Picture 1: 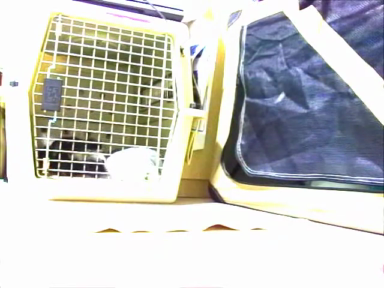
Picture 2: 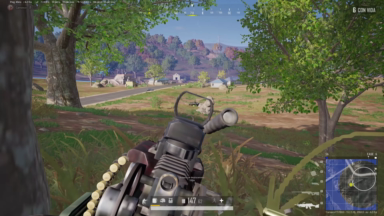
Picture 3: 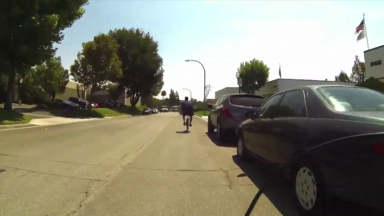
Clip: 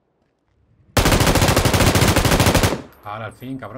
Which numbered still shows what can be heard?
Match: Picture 2